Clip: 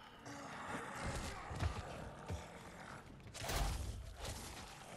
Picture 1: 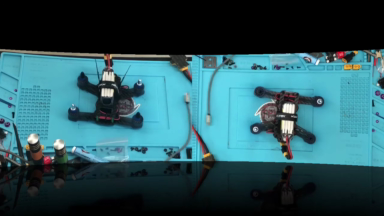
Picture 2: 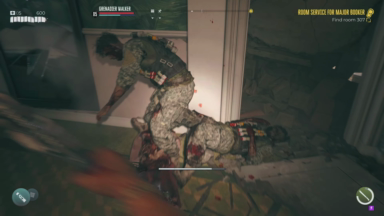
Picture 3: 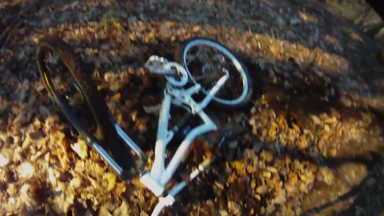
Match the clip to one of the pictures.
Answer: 2